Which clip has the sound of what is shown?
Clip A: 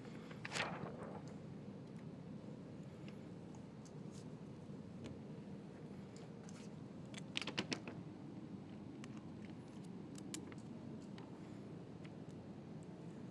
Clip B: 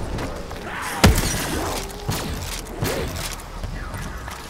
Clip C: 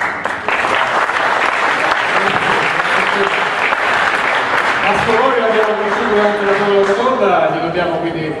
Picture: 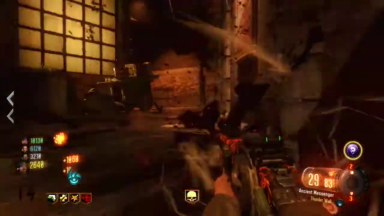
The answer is B